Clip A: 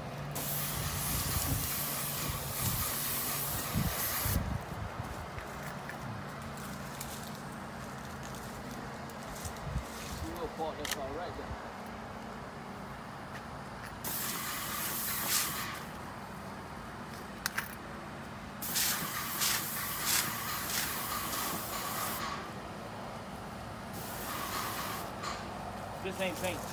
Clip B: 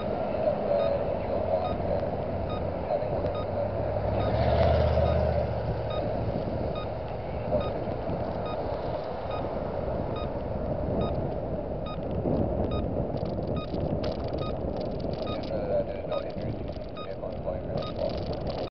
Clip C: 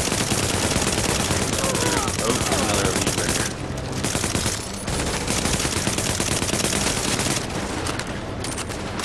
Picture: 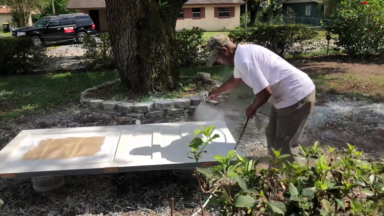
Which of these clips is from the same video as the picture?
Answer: A